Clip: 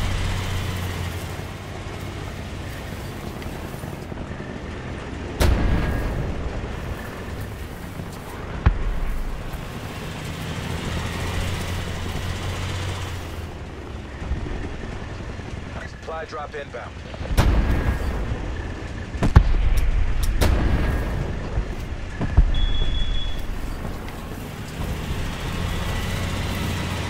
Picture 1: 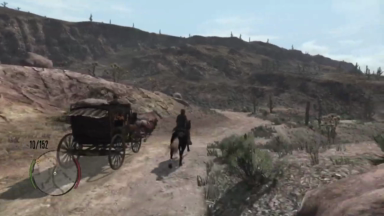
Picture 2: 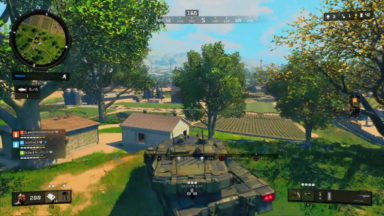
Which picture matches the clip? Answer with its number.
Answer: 2